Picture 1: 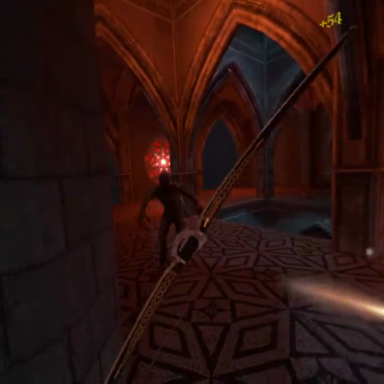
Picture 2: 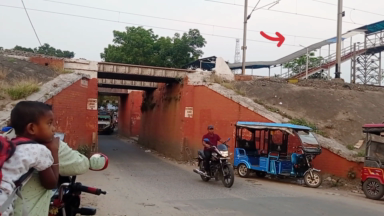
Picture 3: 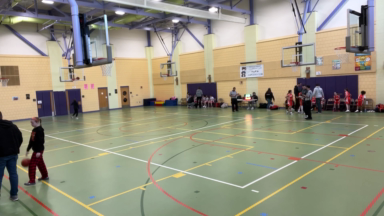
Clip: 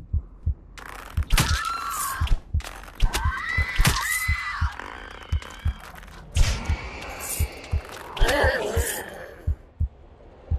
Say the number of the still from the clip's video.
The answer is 1